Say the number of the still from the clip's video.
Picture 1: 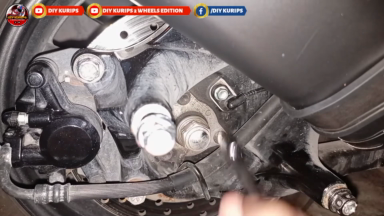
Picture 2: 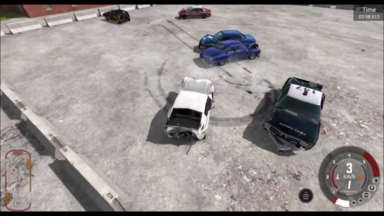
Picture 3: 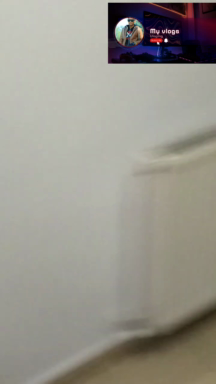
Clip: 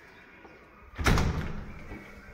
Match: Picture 3